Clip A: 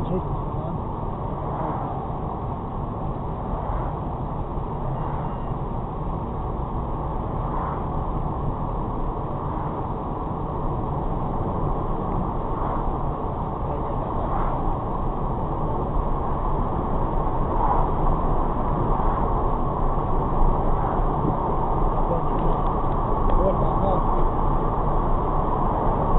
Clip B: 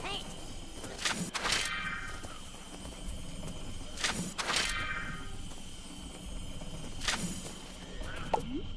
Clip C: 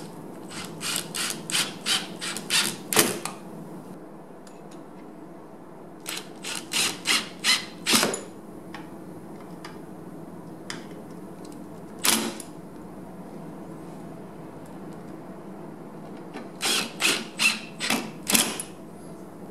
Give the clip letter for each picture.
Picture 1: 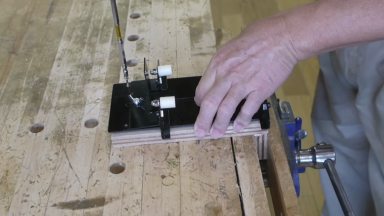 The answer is C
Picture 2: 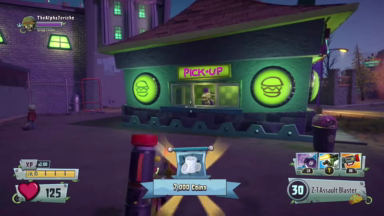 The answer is B